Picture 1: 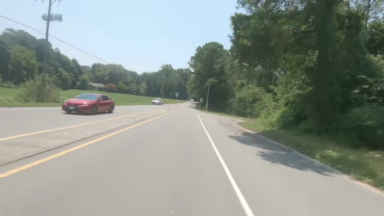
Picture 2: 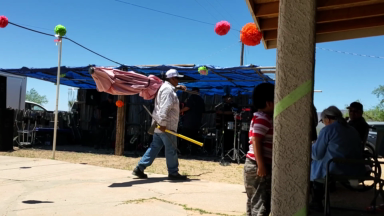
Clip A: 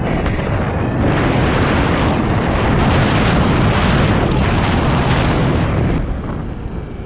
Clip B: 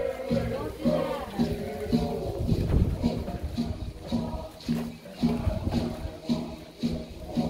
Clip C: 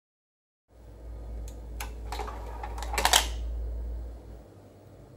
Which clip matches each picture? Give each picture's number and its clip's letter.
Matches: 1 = A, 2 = B